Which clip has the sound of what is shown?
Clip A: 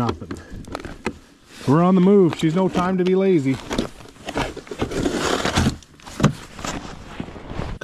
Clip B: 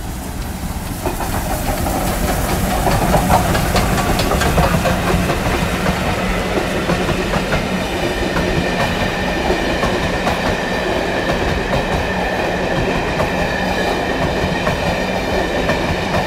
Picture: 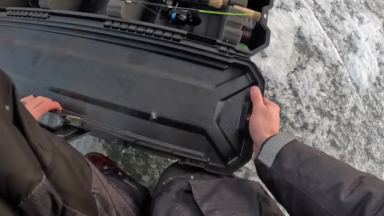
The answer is A